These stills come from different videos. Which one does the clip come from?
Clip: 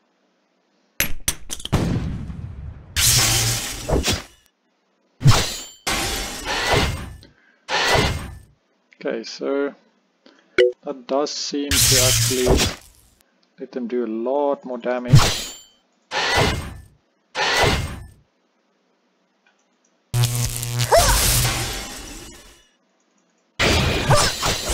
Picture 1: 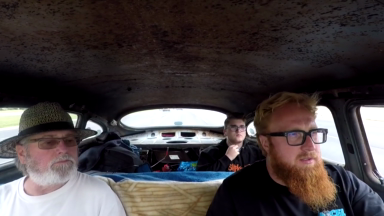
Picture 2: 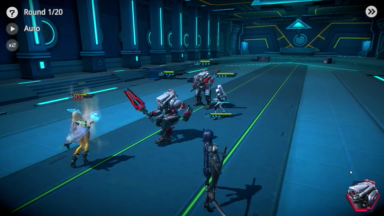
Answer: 2